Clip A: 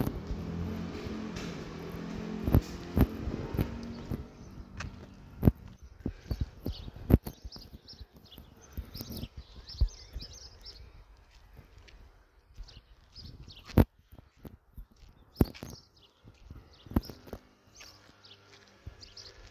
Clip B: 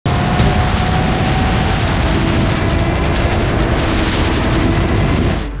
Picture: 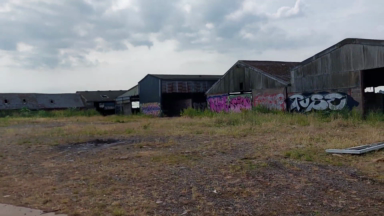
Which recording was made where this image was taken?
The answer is A